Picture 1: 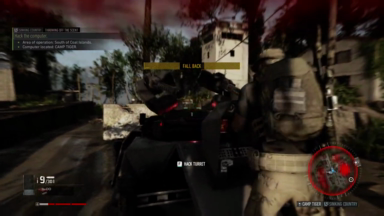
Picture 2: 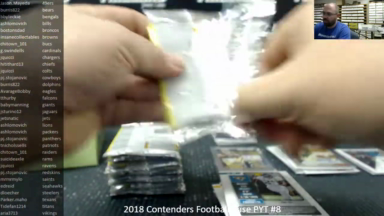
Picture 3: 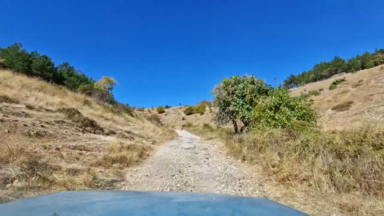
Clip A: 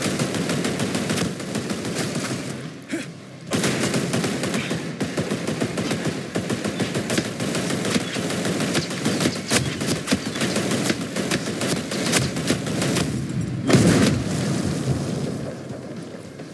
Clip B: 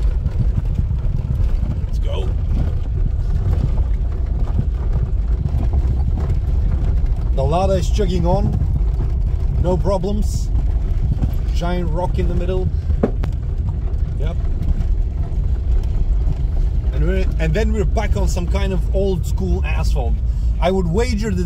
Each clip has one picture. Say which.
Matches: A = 1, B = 3